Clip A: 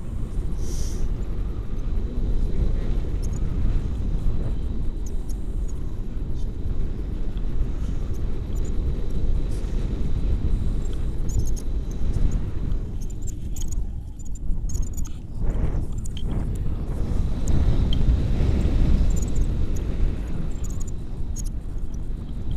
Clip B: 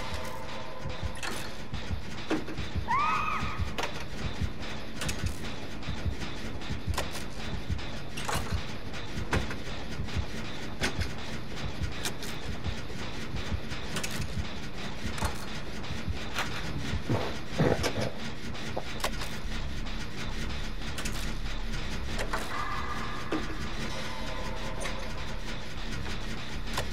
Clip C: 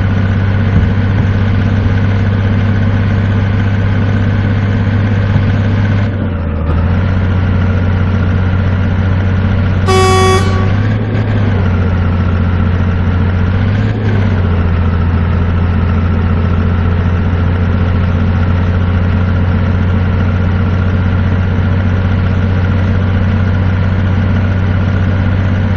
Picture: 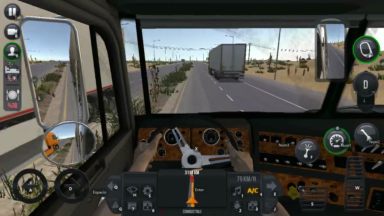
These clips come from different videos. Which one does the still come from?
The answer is C